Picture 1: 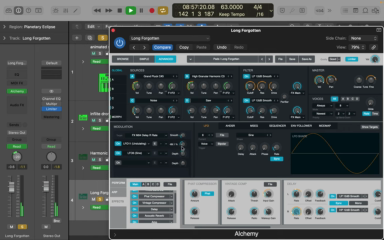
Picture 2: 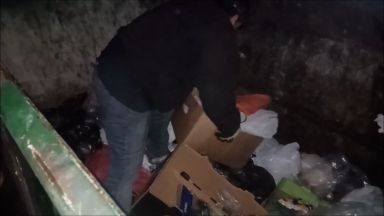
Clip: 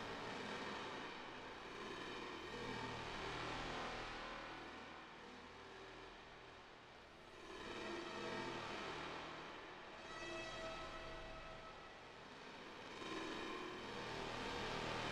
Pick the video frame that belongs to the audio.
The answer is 1